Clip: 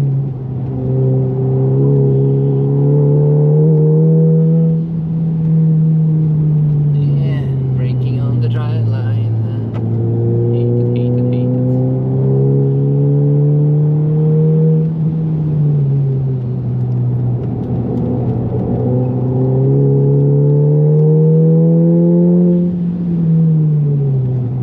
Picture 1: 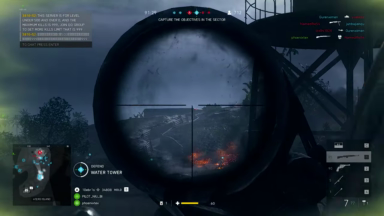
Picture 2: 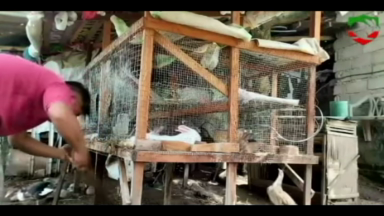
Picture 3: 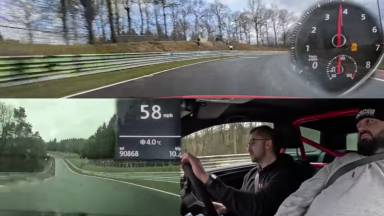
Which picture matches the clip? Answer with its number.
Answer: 3